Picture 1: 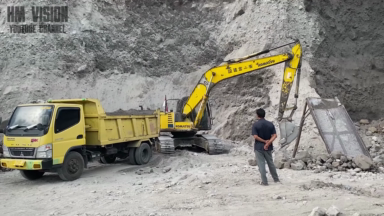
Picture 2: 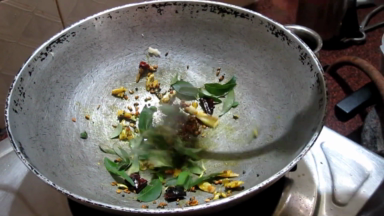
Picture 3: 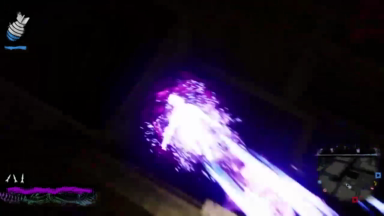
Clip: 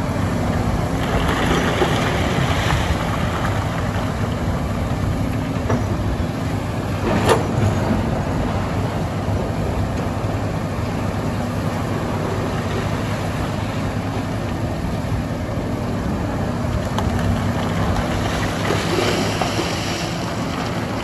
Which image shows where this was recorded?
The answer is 1